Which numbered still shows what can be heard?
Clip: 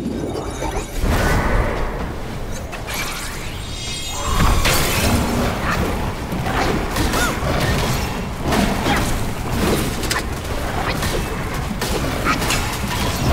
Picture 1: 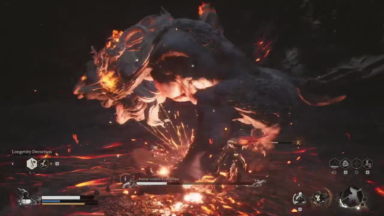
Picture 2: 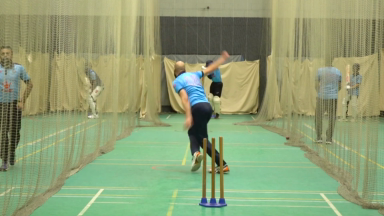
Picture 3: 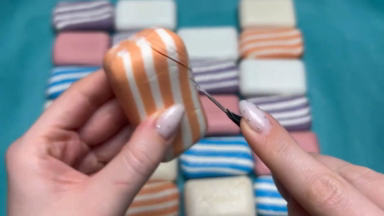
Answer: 1